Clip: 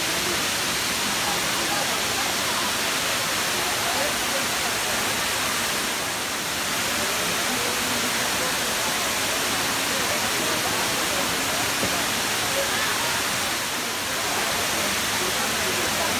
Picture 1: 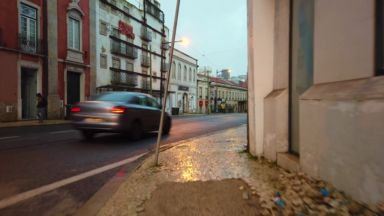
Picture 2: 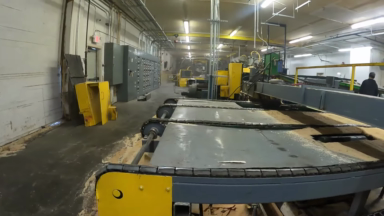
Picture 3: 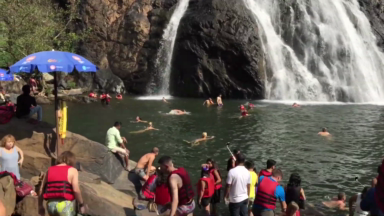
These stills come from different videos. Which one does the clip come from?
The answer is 3